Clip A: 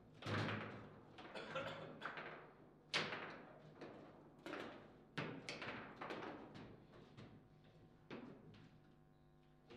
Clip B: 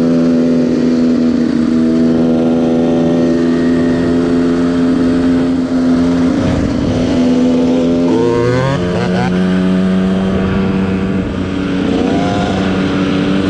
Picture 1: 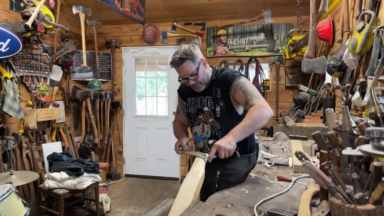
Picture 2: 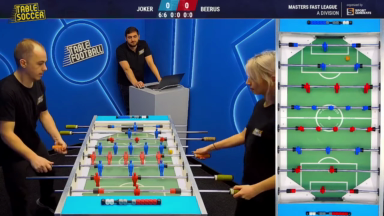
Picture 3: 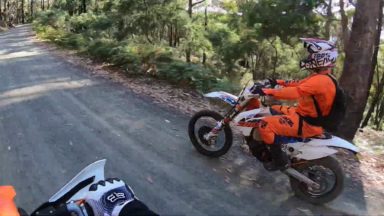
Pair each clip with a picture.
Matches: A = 2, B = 3